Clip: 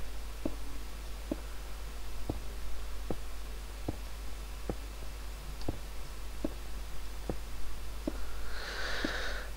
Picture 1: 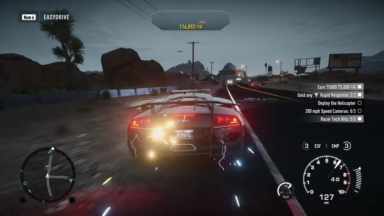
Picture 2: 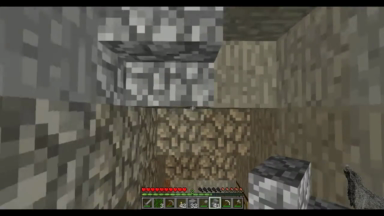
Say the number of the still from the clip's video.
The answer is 2